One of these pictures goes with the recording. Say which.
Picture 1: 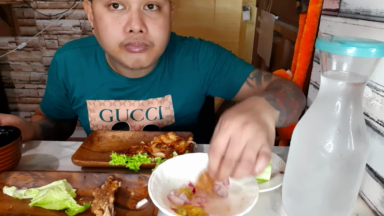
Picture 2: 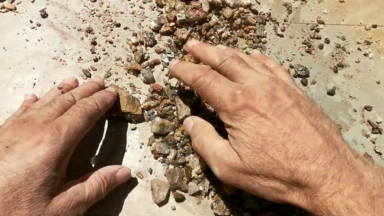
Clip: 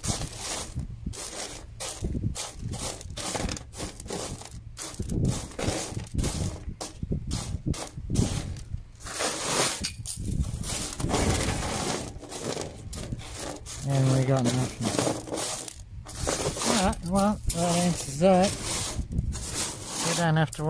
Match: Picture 2